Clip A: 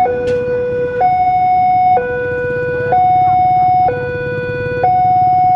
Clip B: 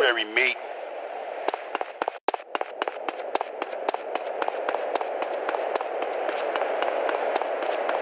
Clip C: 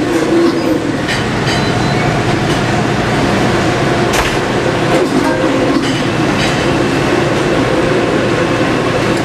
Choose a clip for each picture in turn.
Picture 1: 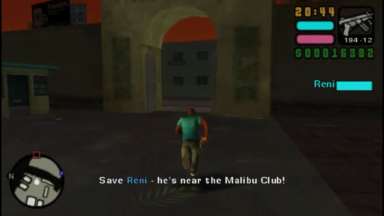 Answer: B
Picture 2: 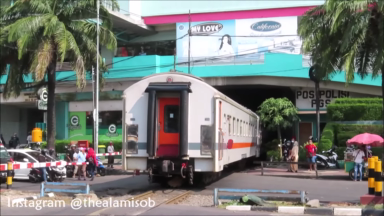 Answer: A